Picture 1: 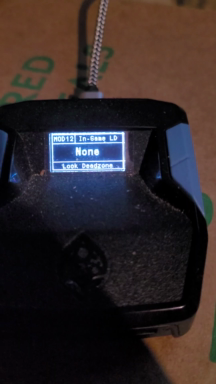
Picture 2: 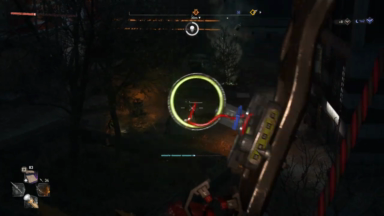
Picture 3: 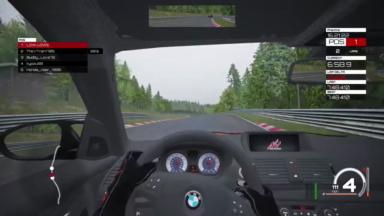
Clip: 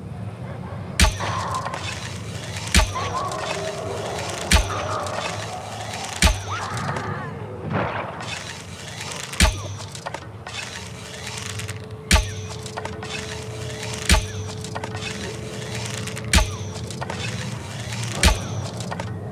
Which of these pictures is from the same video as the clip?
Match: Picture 2